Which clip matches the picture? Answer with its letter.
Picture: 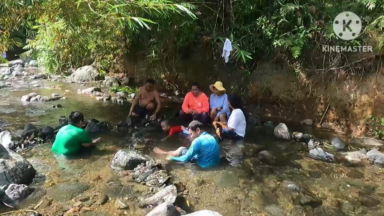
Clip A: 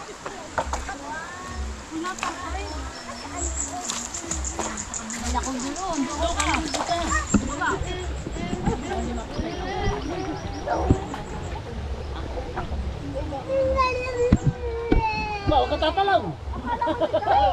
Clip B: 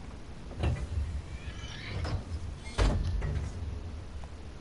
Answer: A